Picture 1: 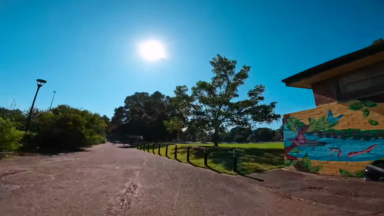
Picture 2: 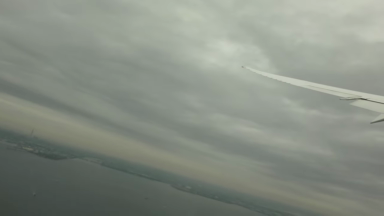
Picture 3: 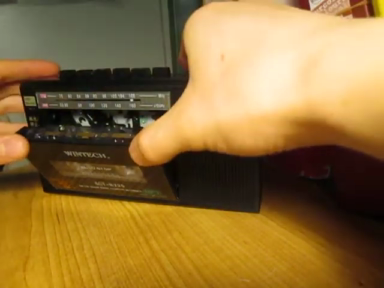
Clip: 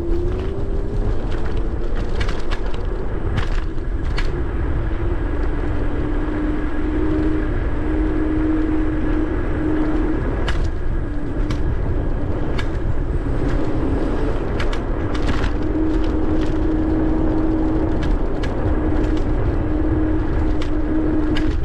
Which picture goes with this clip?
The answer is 1